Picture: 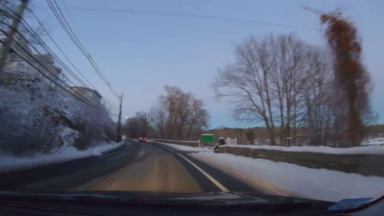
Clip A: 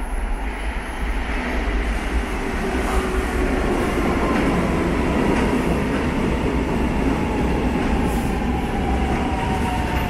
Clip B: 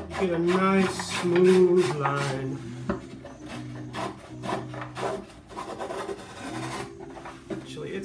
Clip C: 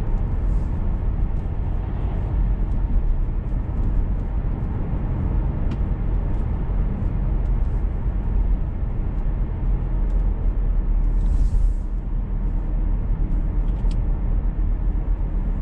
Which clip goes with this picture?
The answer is C